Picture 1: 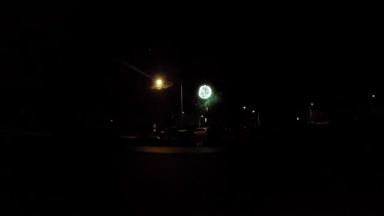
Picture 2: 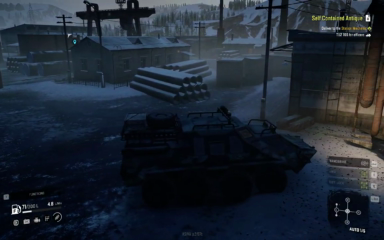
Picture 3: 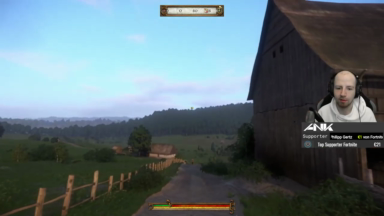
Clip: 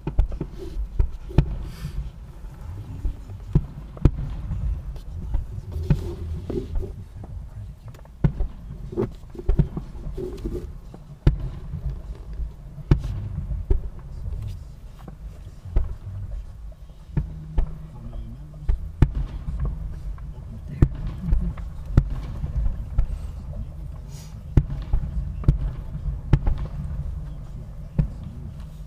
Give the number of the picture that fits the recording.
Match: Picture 1